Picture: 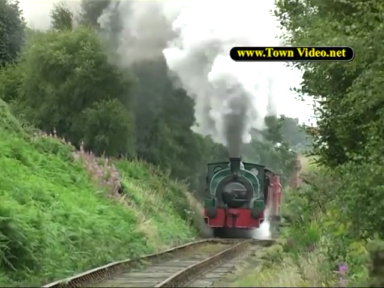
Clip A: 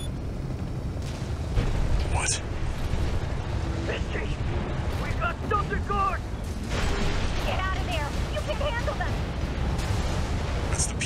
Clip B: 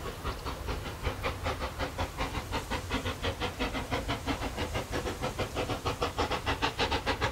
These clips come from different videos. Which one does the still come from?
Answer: B